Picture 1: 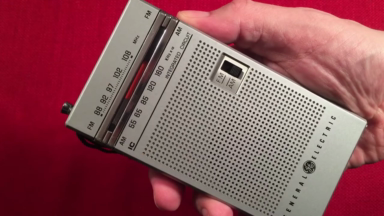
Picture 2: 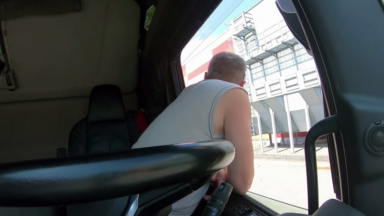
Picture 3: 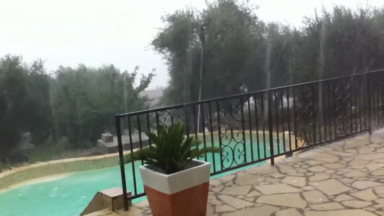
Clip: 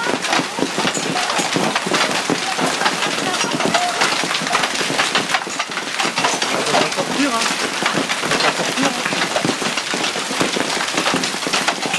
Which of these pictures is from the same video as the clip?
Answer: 3